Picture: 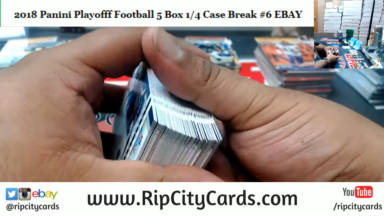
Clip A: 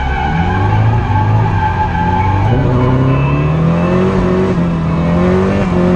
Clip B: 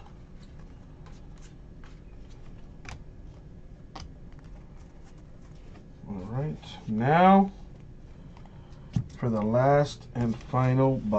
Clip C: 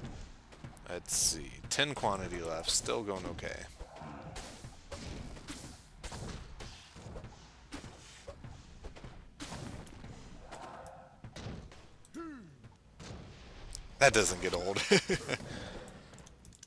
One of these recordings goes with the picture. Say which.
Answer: B